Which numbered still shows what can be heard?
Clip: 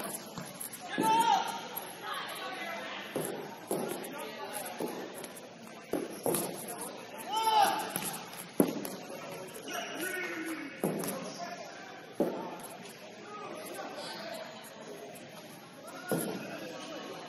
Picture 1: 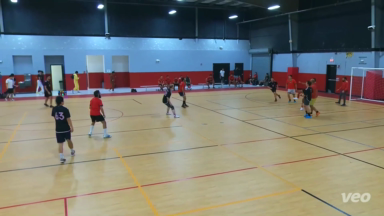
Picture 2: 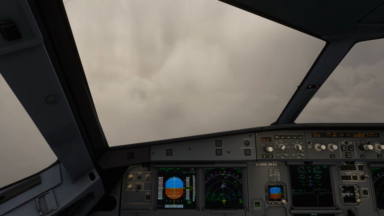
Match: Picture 1